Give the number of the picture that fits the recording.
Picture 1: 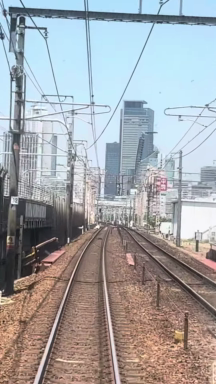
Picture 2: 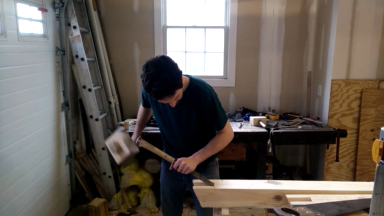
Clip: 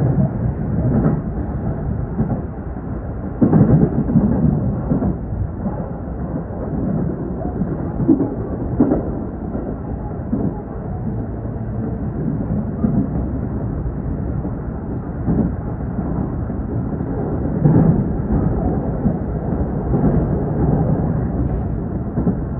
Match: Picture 1